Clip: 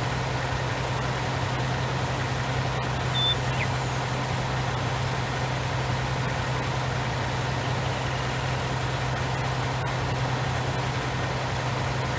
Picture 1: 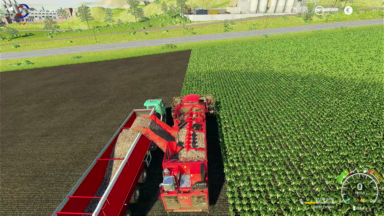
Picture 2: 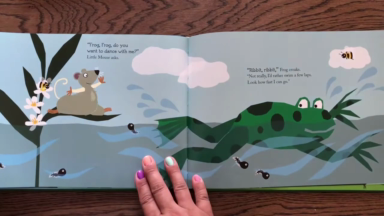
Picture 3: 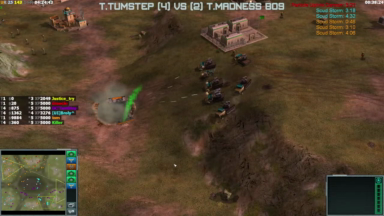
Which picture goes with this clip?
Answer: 1